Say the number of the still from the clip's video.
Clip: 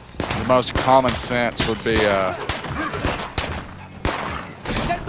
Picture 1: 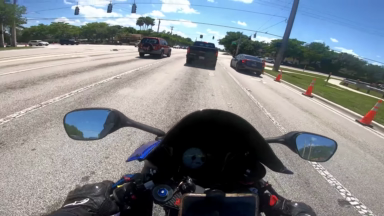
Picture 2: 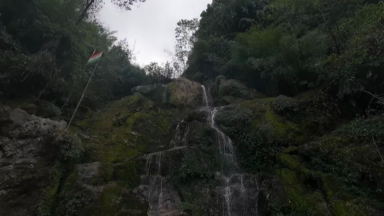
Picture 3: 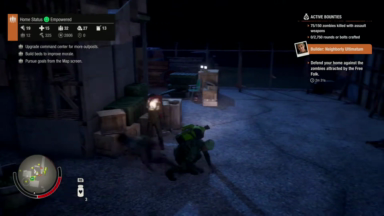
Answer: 3